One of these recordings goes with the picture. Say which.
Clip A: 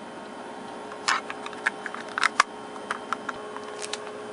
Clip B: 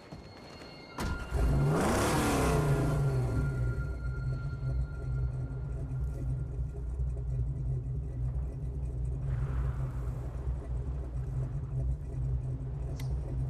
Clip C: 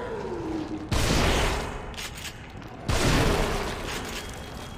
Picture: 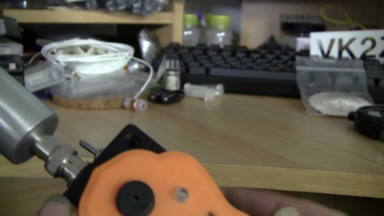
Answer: A